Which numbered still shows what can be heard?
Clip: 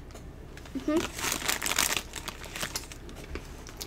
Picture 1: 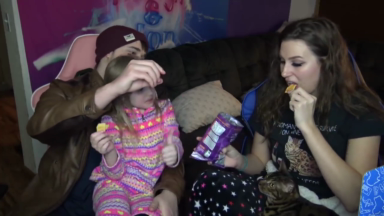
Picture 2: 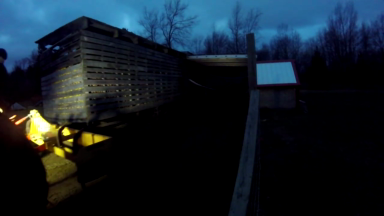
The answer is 1